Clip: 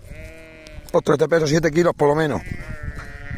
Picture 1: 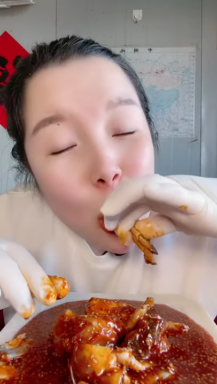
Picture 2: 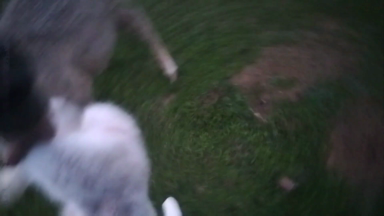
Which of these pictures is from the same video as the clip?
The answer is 2